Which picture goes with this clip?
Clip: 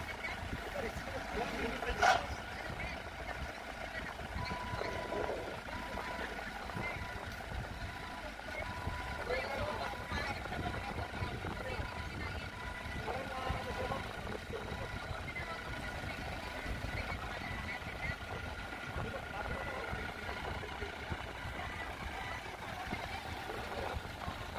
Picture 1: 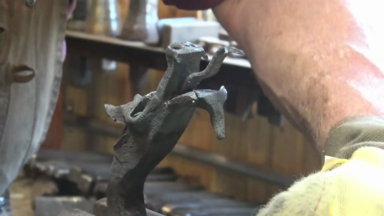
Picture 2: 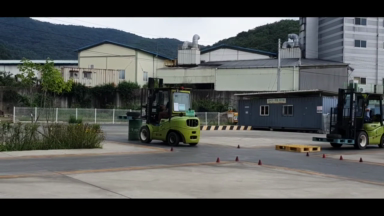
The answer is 2